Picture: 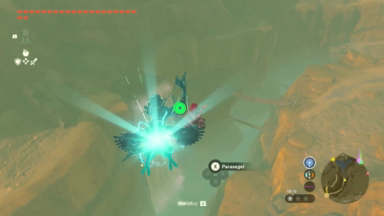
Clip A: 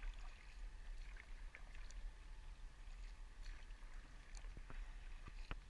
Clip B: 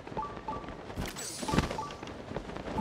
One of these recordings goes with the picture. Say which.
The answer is B